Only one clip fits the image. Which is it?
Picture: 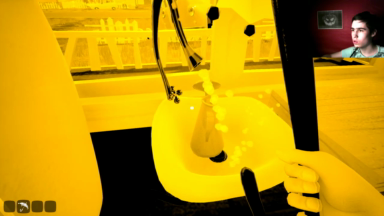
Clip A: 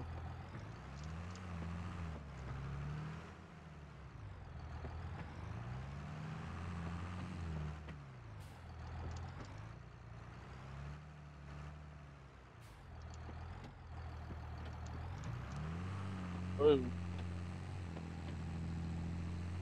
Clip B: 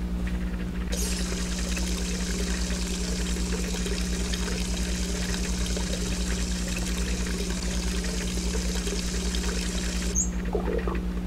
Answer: B